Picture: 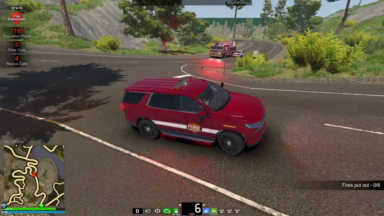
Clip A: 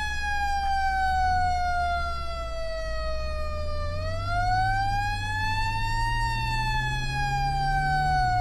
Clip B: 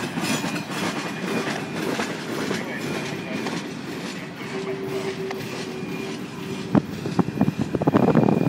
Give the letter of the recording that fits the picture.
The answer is A